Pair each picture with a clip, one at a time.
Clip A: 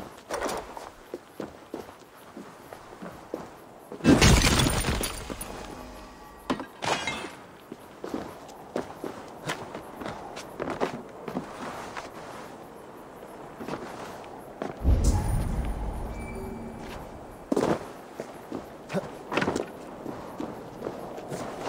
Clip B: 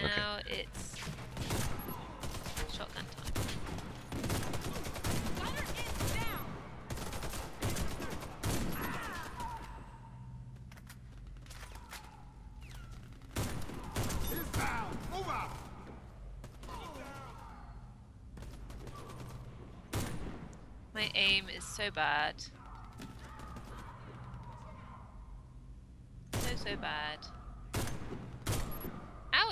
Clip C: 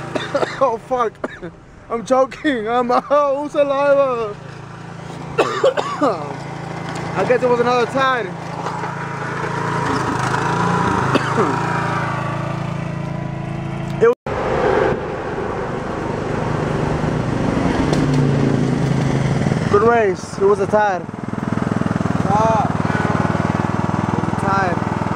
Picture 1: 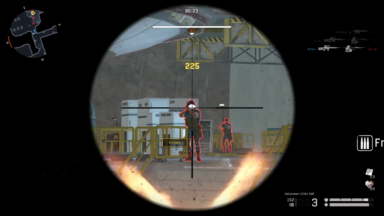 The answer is B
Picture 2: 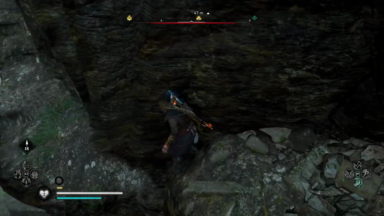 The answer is A